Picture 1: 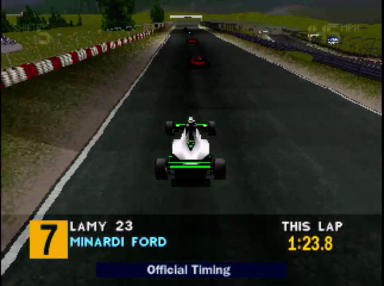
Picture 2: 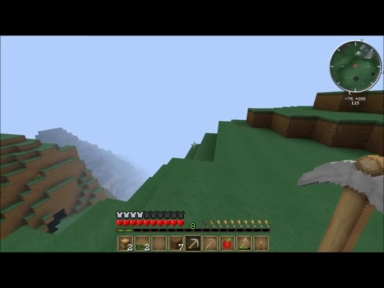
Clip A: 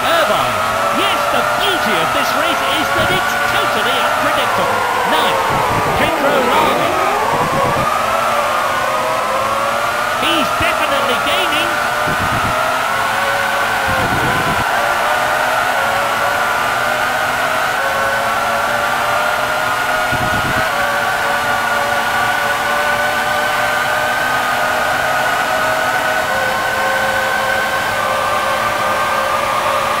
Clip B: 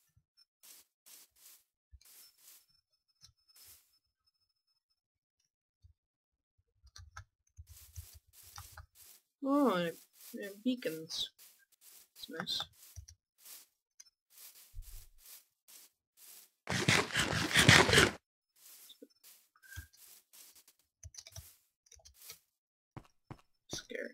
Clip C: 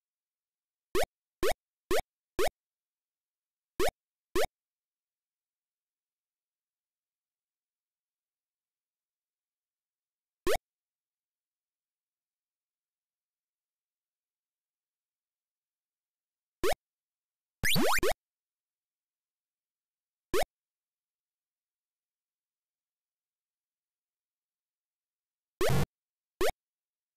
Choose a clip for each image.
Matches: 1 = A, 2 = B